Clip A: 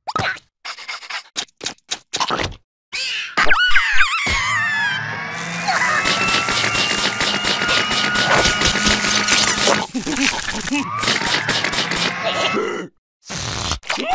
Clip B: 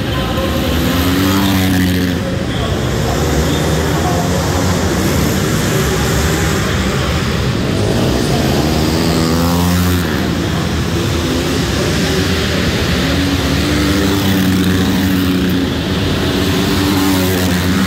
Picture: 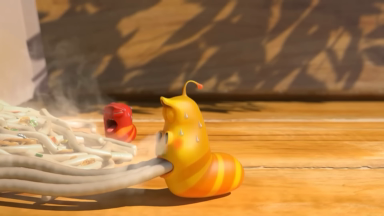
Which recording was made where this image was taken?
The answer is A